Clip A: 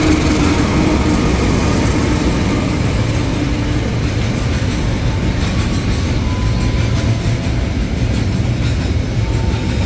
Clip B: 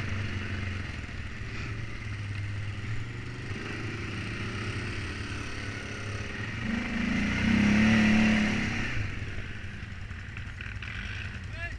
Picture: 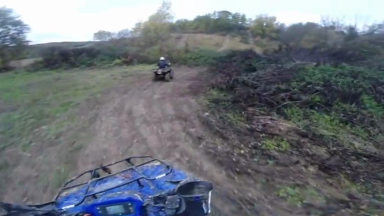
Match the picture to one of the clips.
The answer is B